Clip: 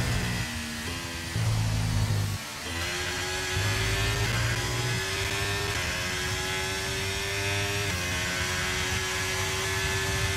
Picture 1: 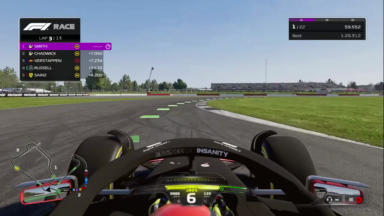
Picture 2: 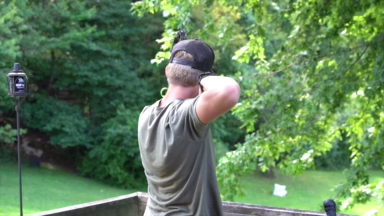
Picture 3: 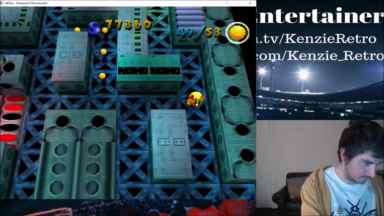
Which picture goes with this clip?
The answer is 1